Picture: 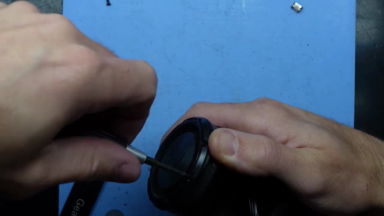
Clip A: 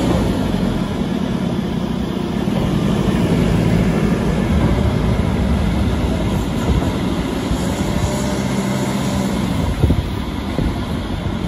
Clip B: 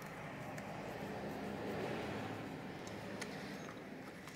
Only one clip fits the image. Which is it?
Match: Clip B